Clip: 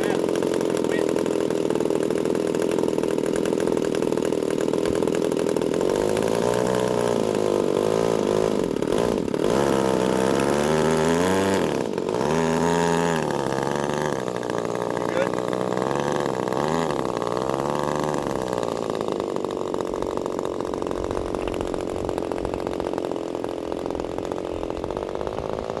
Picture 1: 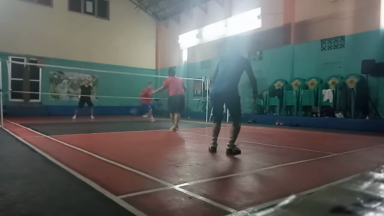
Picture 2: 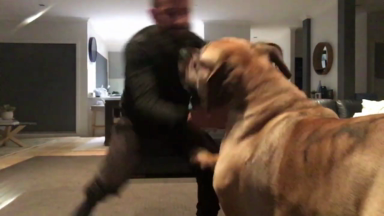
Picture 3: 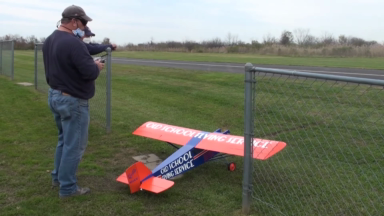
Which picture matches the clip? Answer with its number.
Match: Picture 3